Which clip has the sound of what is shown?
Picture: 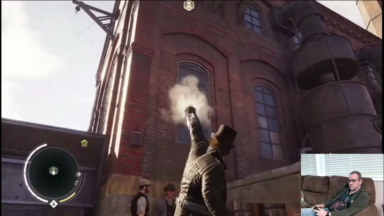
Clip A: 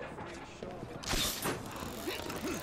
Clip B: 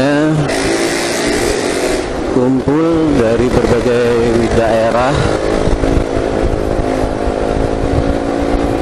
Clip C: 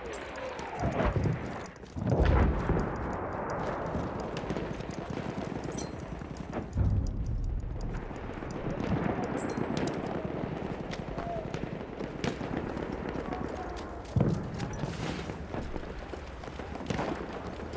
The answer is A